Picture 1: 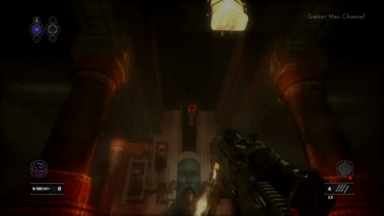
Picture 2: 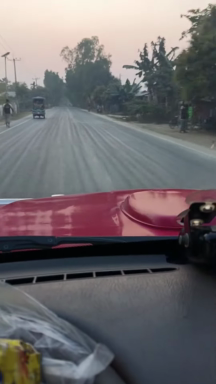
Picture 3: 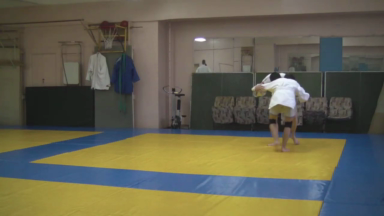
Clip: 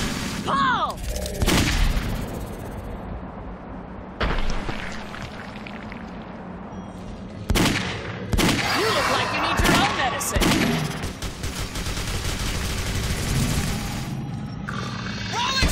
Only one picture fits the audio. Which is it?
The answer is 1